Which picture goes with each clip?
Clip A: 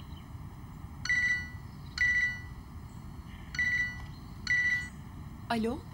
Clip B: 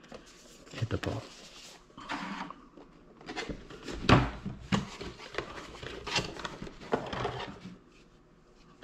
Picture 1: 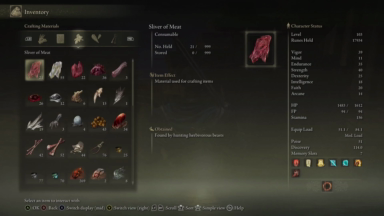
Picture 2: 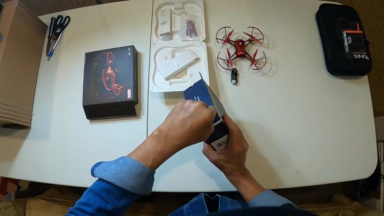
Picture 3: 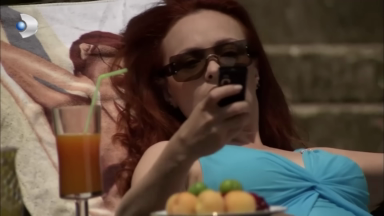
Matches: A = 3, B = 2